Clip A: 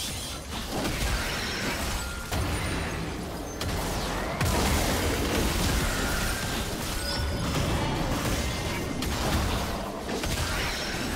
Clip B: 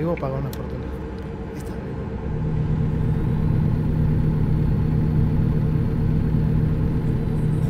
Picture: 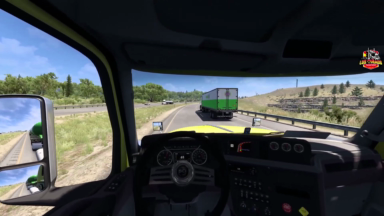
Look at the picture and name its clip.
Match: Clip B